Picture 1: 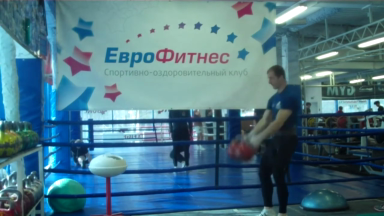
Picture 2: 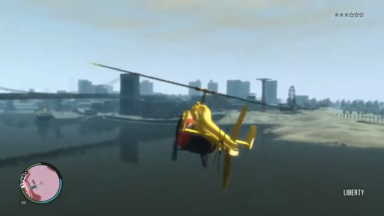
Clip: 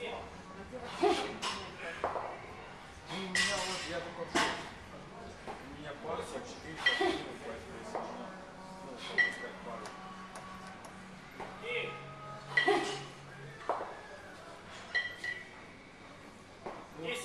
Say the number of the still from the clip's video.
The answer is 1